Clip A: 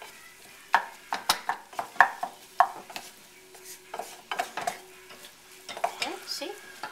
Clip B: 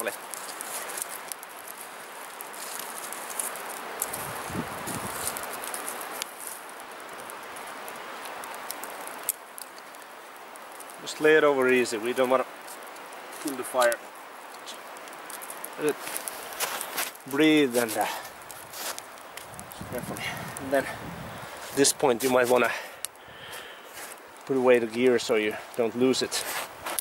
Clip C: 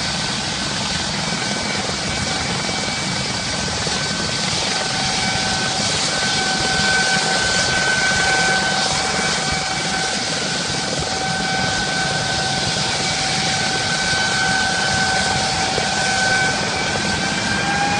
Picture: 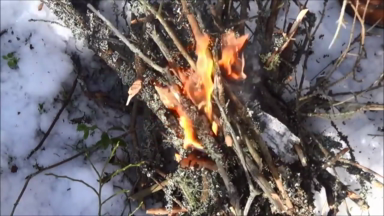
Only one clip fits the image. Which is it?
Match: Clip B